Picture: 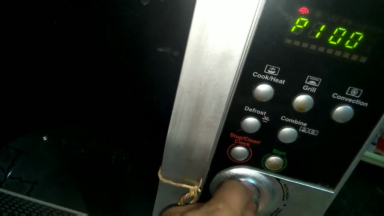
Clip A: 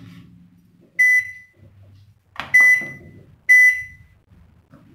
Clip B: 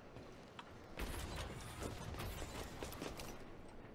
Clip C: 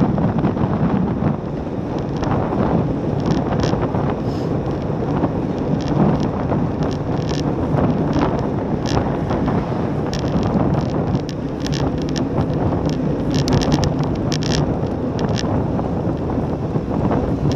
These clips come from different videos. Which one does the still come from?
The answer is A